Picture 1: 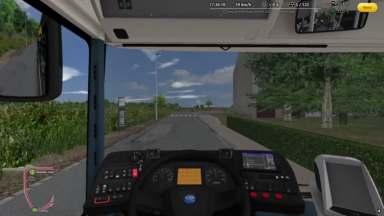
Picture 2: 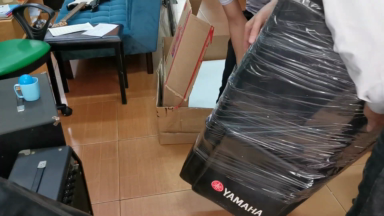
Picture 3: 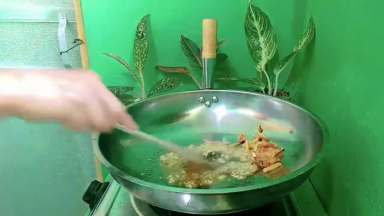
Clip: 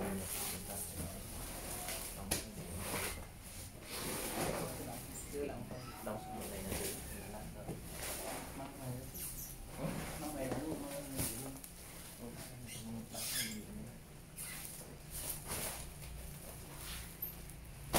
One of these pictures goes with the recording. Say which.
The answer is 2